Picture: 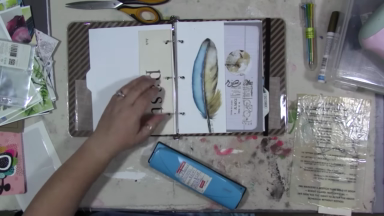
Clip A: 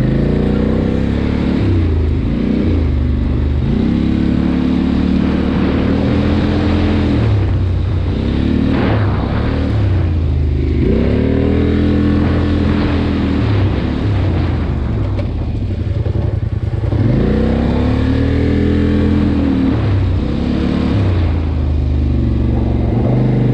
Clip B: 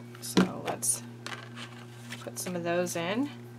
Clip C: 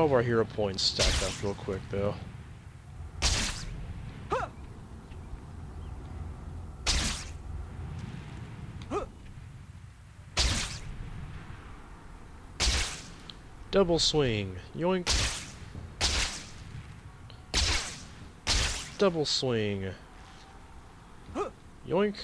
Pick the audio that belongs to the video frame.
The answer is B